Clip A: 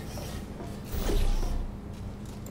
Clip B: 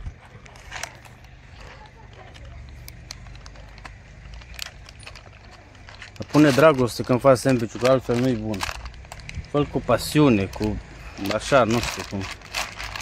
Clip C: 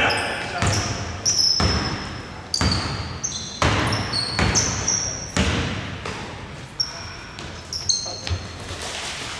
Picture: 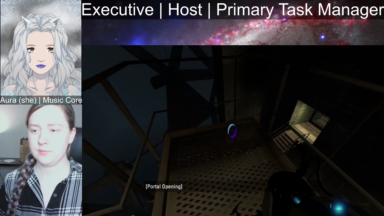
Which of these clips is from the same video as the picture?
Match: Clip A